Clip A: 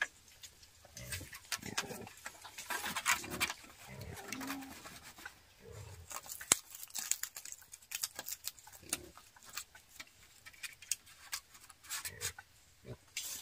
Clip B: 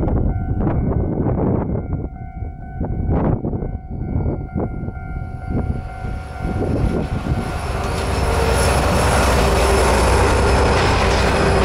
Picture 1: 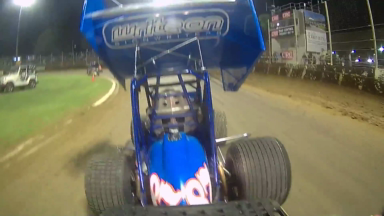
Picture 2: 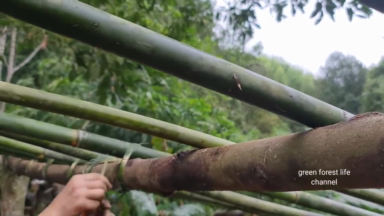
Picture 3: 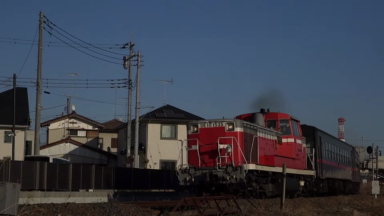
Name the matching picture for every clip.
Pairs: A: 2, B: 3